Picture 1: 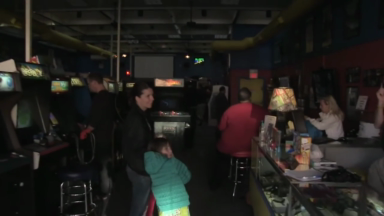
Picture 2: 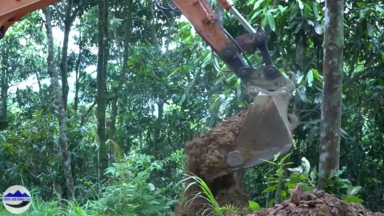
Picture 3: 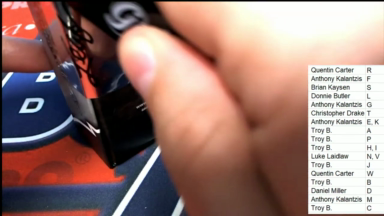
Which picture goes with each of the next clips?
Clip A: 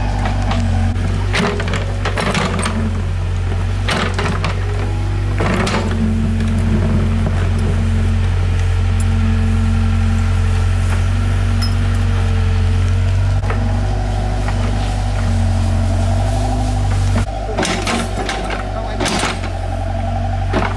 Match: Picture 2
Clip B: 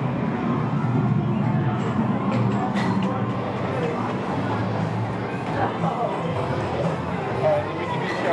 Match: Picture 1